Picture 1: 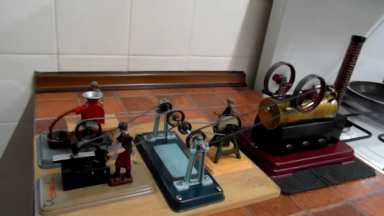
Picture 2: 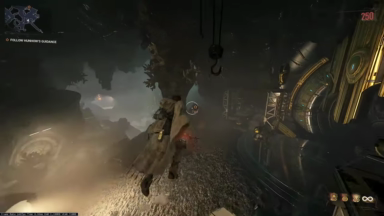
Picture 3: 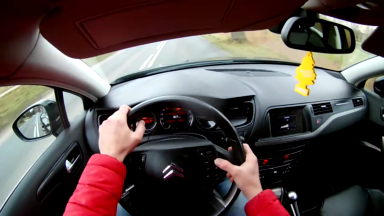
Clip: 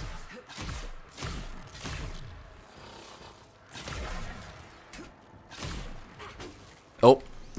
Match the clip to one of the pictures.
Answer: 2